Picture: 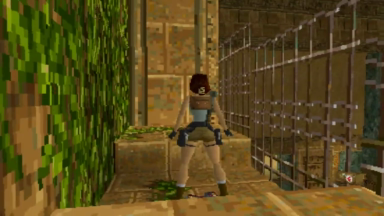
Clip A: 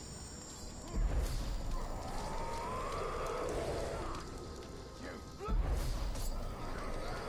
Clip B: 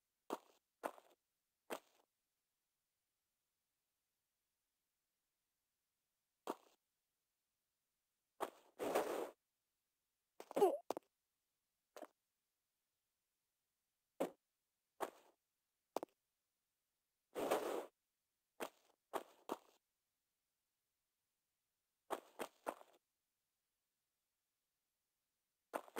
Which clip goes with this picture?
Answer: B